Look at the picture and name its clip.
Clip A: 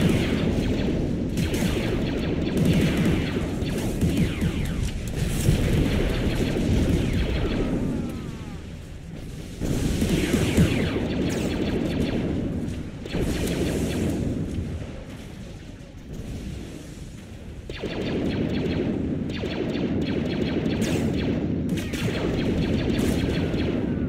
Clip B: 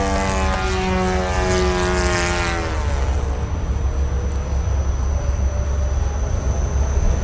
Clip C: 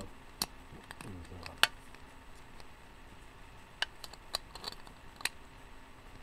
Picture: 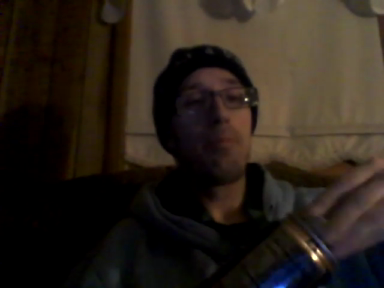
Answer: C